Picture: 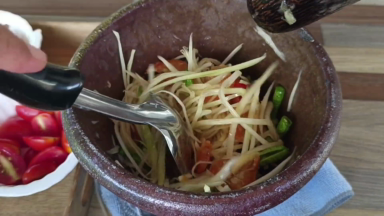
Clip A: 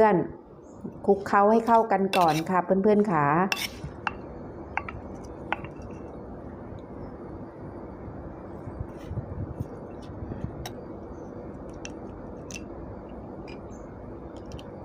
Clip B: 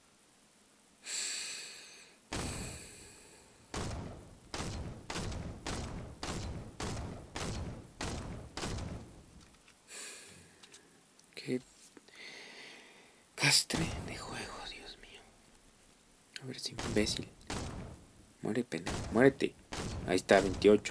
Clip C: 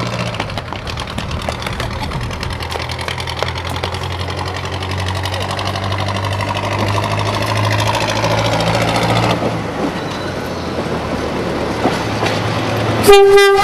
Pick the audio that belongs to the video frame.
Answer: A